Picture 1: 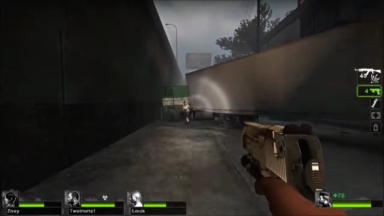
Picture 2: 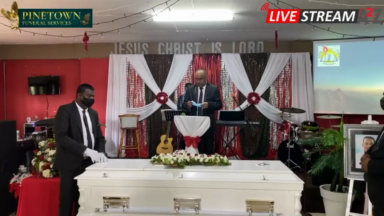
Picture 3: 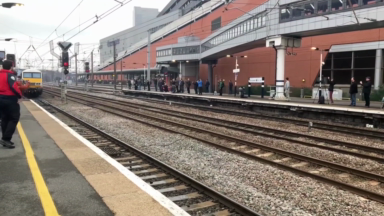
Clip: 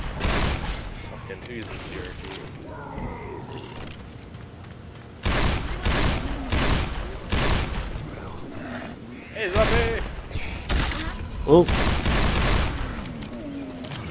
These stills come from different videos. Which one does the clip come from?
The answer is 1